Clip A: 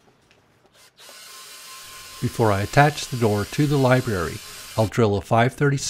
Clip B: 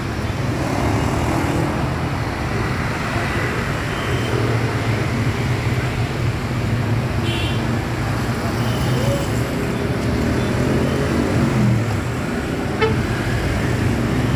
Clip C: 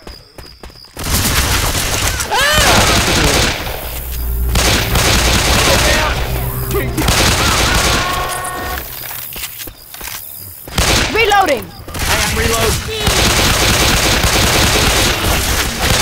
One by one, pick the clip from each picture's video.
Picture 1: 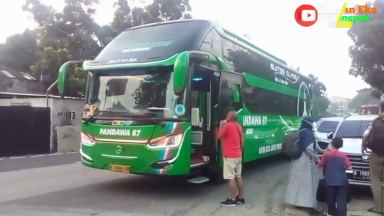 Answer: B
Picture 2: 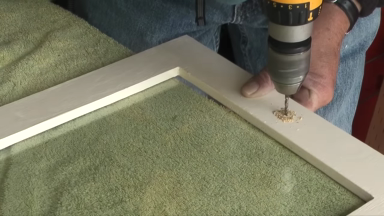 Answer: A